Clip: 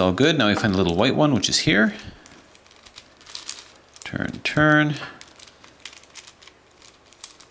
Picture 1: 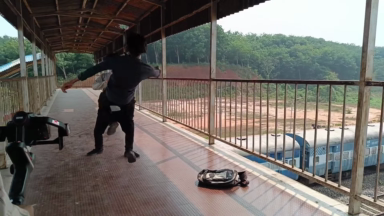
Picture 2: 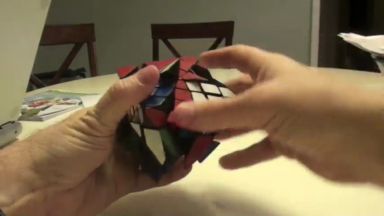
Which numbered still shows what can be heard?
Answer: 2